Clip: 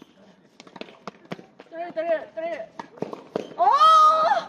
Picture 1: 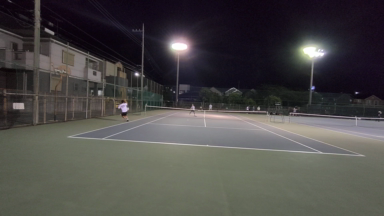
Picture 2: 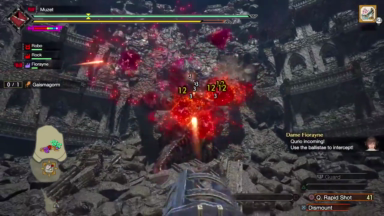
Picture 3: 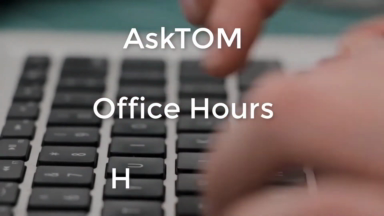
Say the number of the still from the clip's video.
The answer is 1